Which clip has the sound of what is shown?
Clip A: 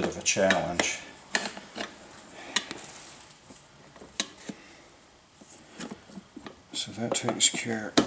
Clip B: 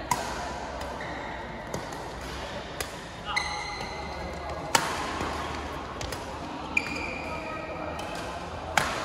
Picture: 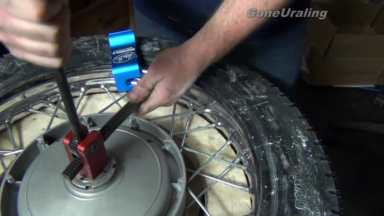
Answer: A